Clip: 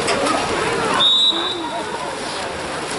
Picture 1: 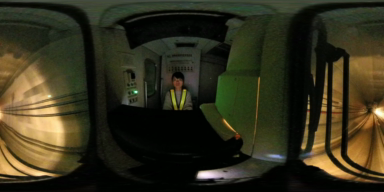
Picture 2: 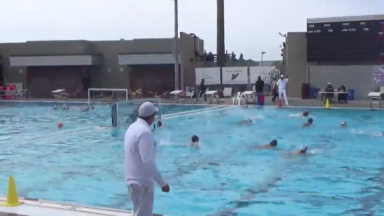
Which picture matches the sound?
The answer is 2